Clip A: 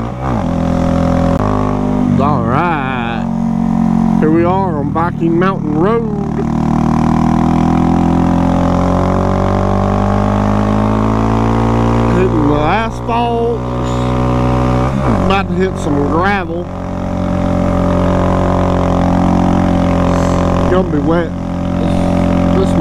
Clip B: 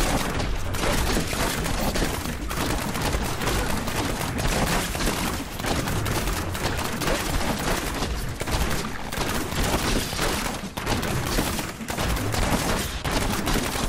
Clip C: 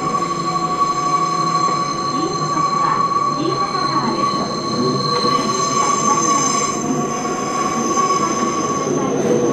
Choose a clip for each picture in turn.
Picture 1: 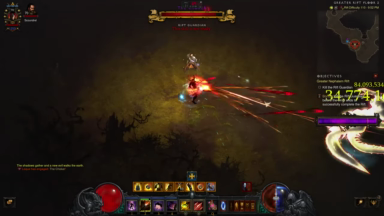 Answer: B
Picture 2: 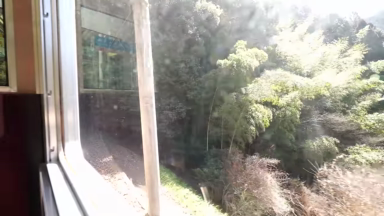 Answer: C